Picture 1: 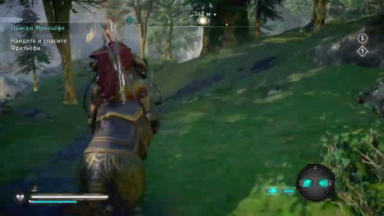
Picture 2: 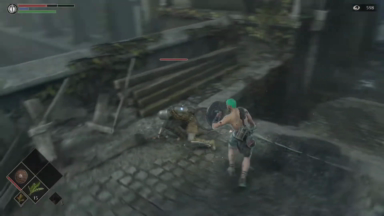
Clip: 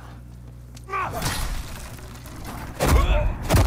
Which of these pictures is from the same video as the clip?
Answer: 2